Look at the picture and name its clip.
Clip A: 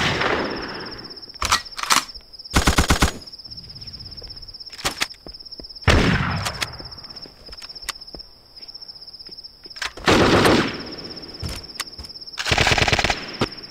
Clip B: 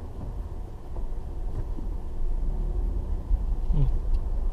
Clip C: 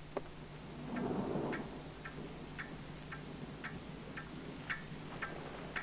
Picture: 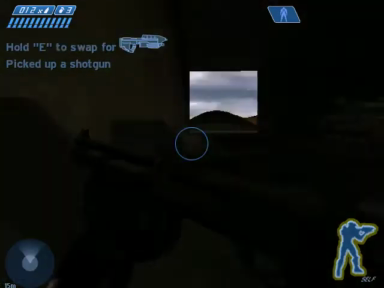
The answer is A